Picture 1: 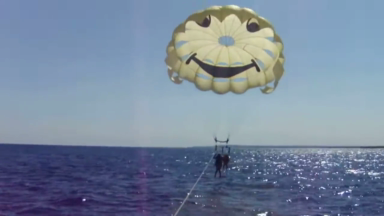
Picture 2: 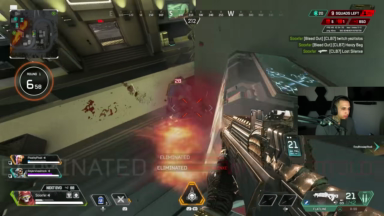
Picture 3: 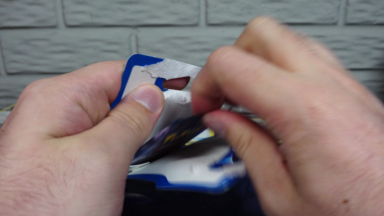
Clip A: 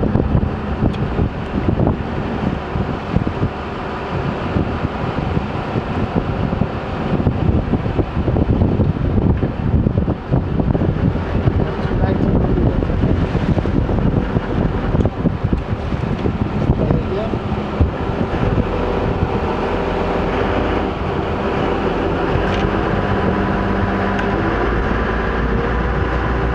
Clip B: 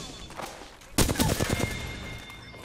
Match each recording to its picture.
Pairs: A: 1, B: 2